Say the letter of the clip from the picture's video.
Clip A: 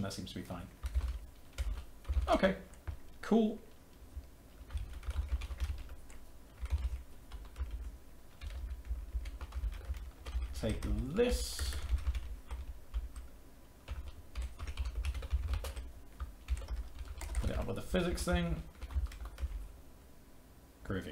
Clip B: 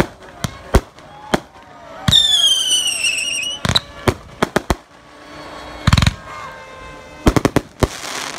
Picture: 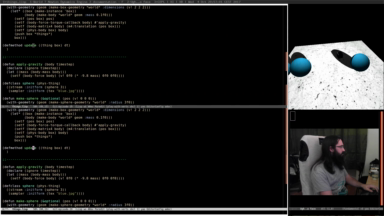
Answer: A